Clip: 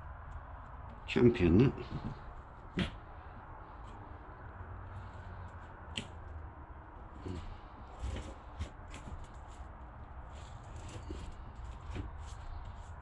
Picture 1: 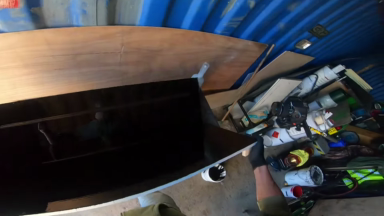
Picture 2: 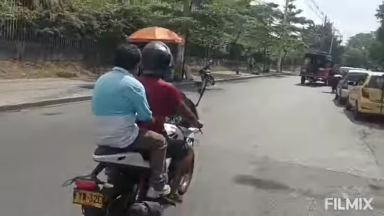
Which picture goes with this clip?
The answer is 1